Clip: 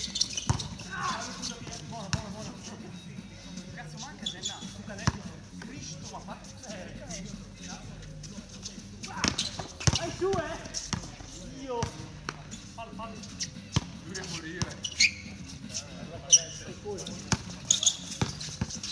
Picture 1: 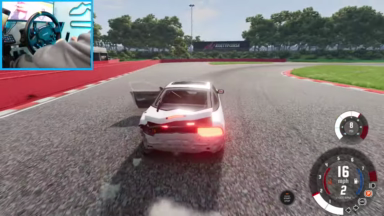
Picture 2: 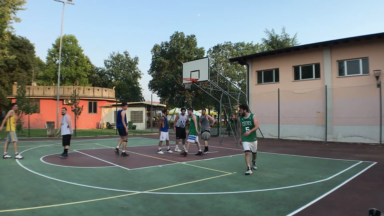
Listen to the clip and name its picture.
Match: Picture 2